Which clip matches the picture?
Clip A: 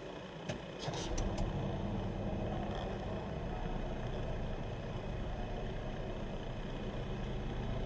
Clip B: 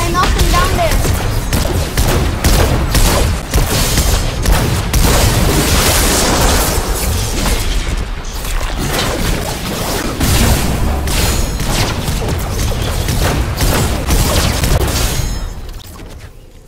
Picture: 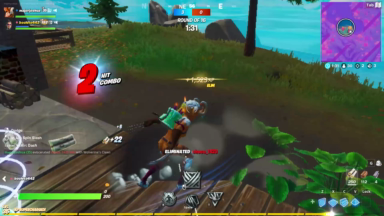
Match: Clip B